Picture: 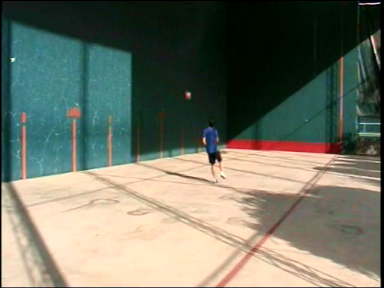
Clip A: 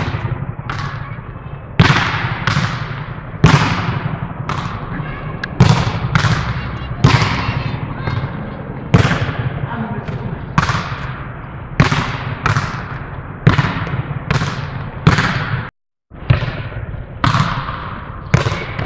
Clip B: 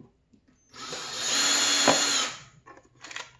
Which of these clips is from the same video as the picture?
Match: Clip A